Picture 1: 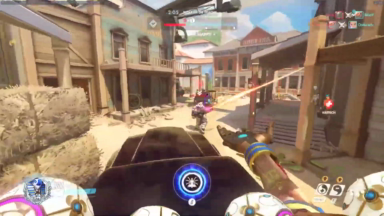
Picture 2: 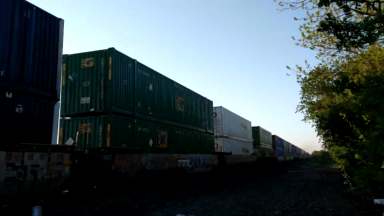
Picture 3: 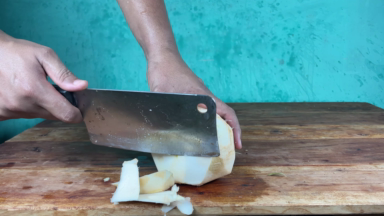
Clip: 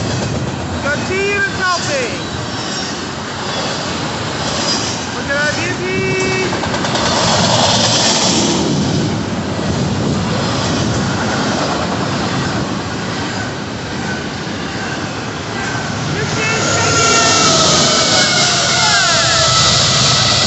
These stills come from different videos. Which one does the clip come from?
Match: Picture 2